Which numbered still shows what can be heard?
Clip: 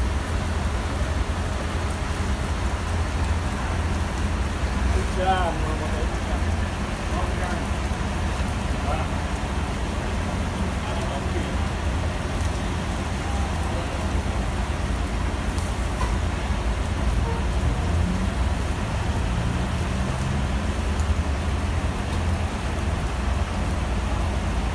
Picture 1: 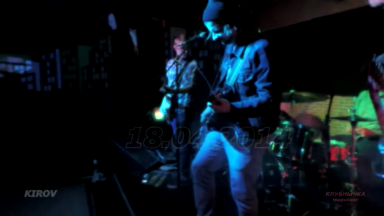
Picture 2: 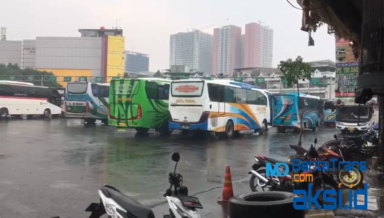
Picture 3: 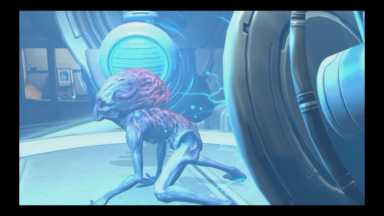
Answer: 2